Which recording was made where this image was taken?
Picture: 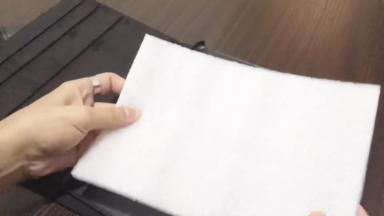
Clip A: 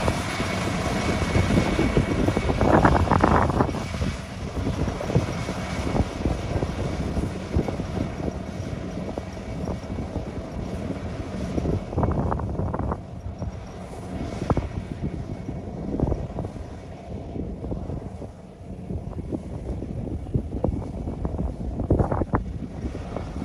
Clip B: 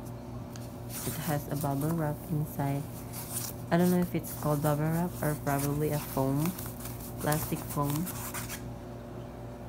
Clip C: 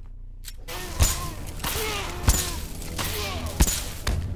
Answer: B